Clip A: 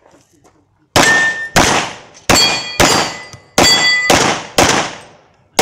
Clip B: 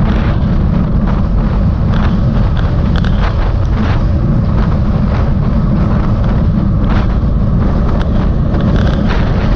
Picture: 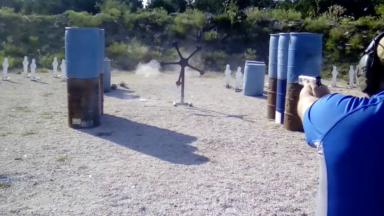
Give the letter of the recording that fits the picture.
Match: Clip A